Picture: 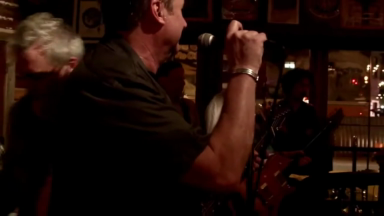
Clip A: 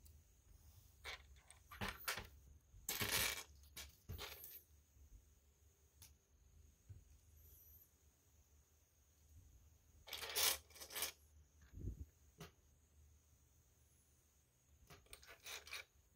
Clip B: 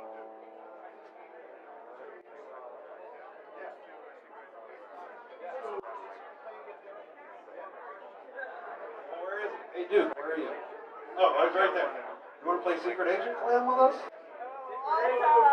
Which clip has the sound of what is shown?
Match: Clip B